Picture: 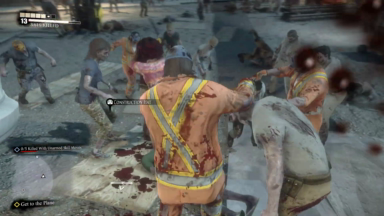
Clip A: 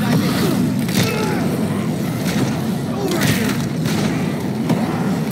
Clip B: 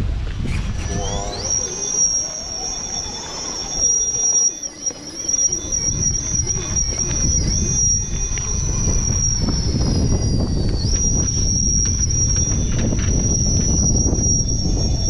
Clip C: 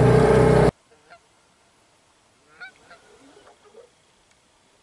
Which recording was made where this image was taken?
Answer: A